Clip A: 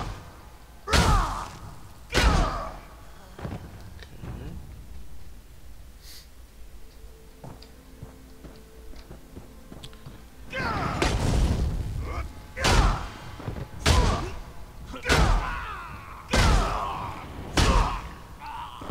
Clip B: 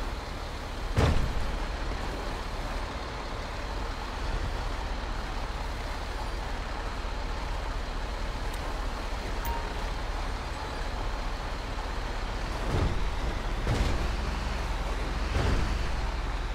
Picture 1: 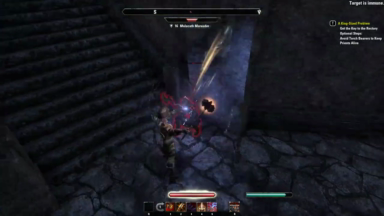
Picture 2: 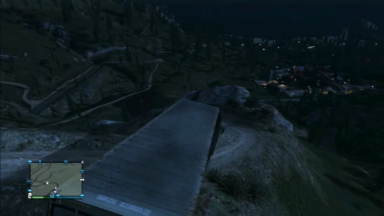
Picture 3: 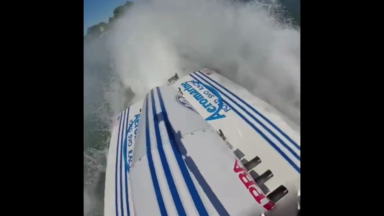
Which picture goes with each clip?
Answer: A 1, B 2